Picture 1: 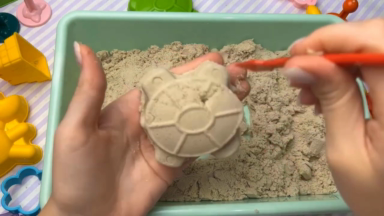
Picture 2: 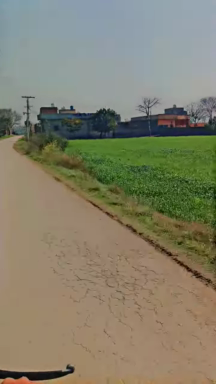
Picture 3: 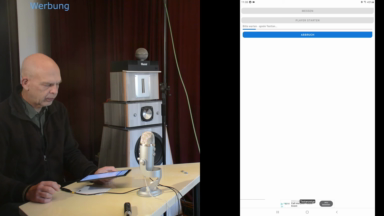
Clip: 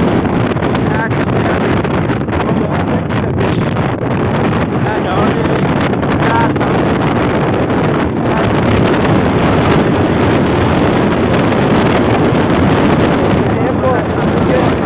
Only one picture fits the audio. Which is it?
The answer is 2